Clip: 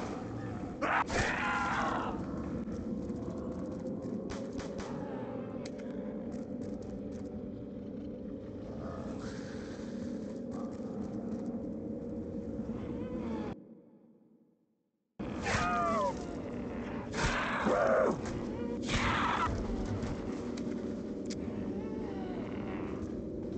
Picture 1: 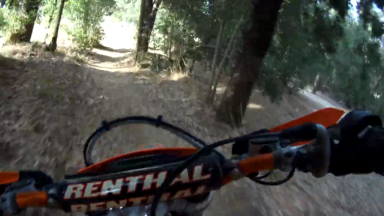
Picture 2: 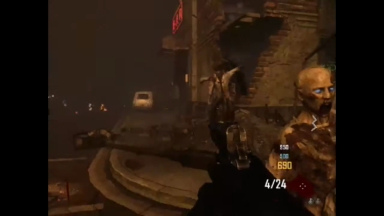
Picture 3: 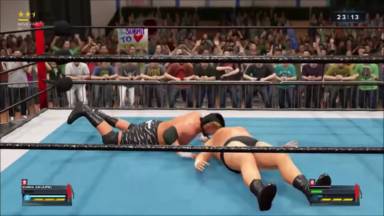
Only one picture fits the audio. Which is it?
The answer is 2